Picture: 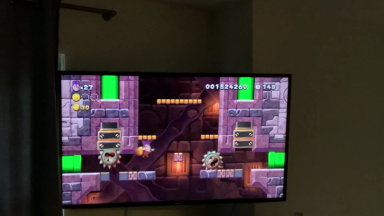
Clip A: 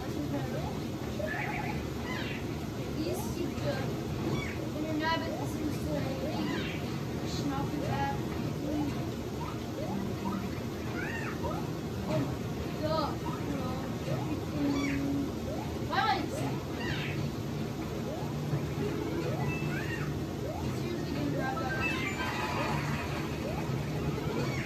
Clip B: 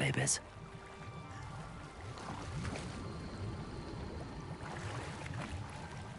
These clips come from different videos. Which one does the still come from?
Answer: A